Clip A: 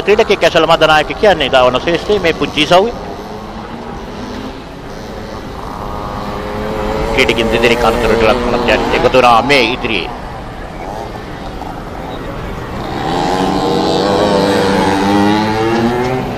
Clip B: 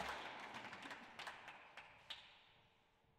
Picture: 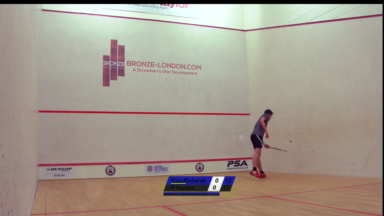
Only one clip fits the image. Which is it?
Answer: B